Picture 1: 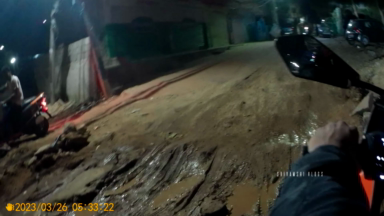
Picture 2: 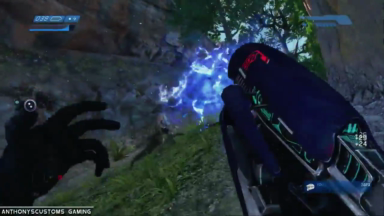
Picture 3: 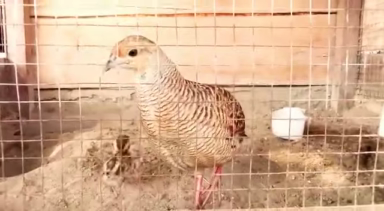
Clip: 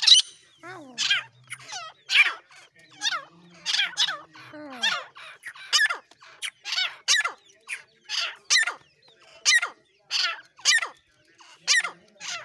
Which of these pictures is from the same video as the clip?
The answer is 3